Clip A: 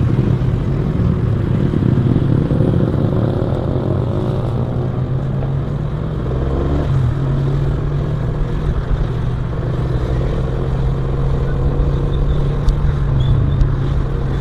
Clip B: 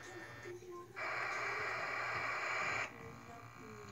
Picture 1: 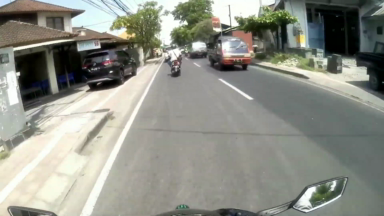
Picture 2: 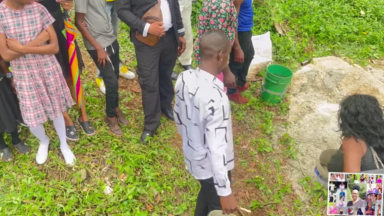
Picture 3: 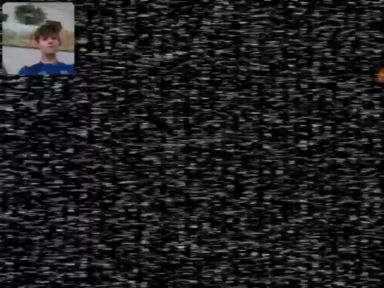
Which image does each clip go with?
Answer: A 1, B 3